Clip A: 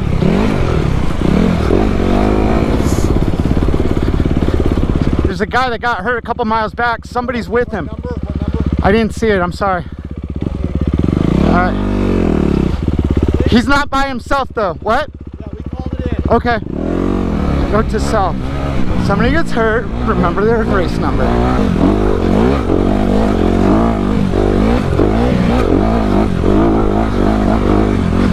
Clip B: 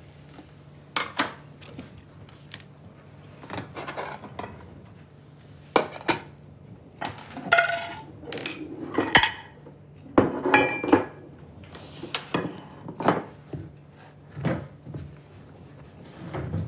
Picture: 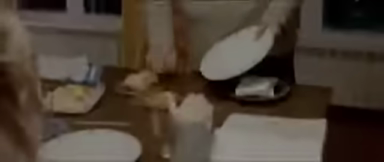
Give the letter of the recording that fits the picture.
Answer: B